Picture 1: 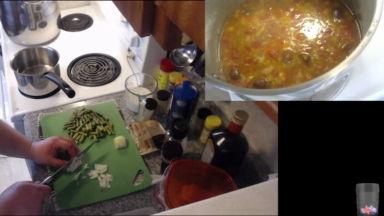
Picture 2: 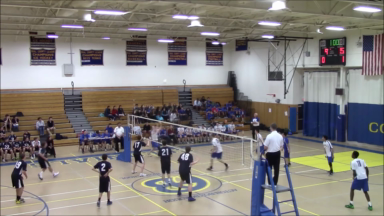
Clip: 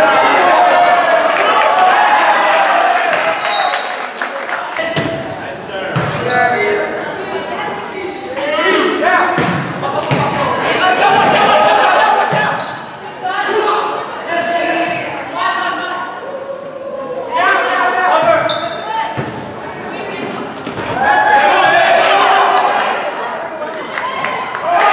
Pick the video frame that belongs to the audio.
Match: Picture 2